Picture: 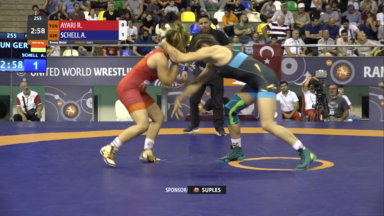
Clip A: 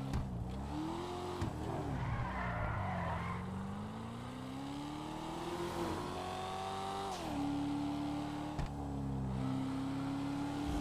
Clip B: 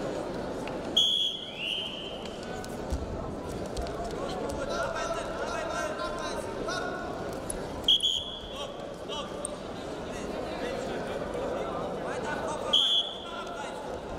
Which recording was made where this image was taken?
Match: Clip B